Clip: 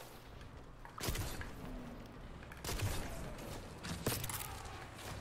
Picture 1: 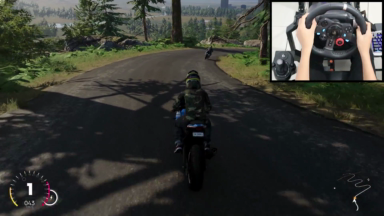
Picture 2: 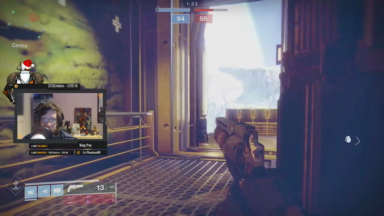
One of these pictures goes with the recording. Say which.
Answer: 2